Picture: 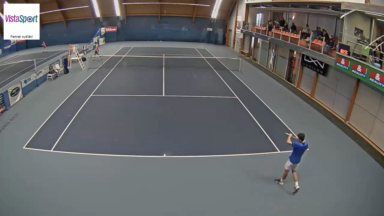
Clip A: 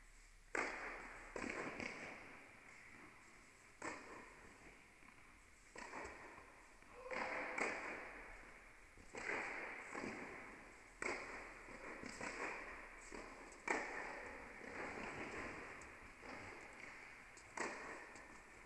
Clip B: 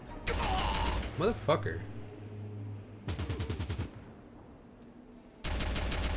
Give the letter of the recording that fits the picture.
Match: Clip A